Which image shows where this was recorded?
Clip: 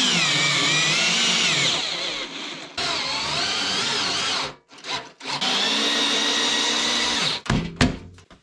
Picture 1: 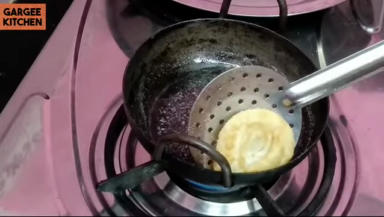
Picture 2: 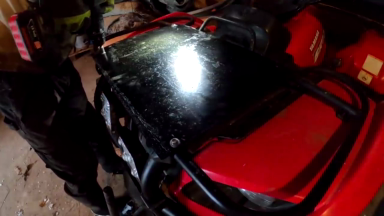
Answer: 2